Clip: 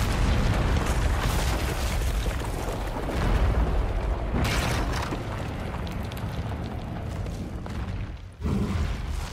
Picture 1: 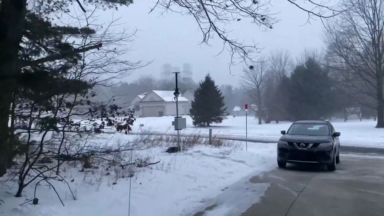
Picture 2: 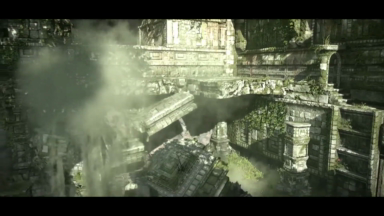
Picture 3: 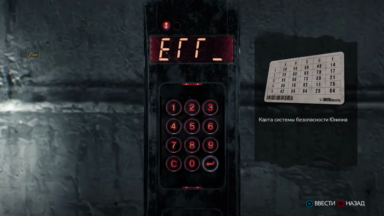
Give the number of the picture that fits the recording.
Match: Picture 2